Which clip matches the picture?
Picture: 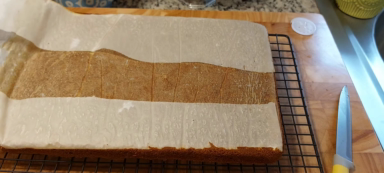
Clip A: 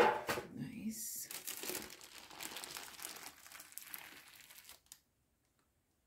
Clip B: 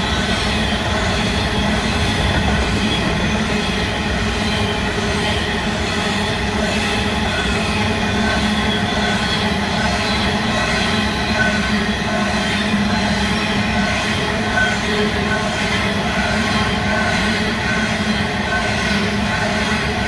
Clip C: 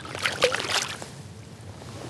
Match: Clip A